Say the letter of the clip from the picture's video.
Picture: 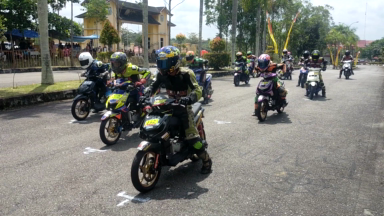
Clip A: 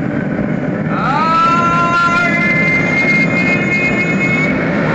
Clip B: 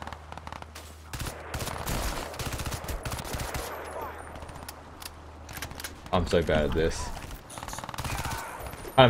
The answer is A